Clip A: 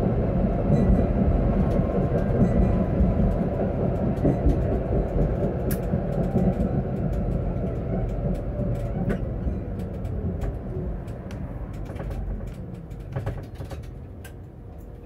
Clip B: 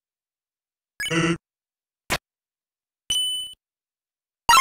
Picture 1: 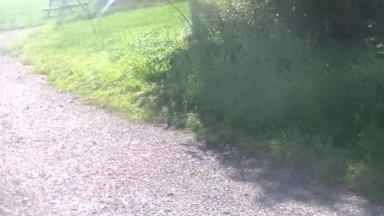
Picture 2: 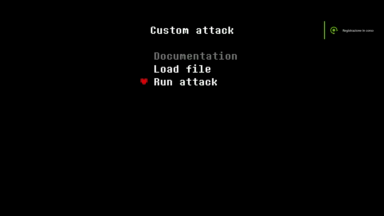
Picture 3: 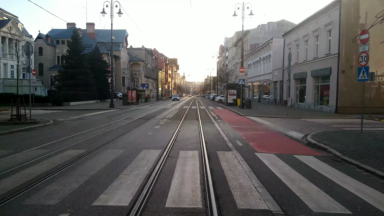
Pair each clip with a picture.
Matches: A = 3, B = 2